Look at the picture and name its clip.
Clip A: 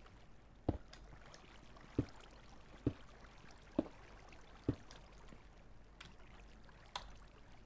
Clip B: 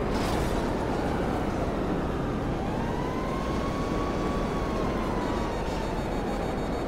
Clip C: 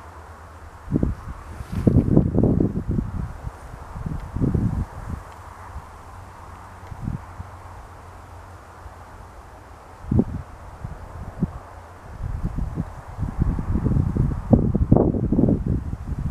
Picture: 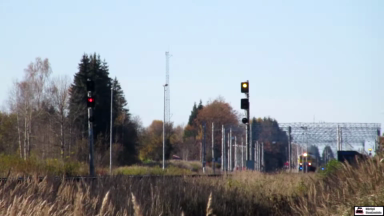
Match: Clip C